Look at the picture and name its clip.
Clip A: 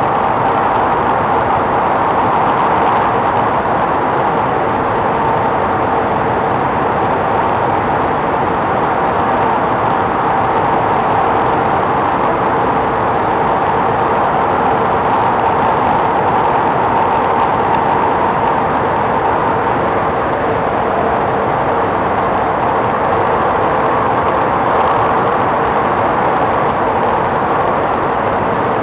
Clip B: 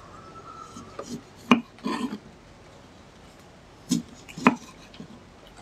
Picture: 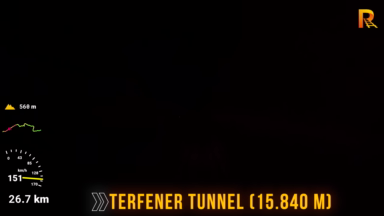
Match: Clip A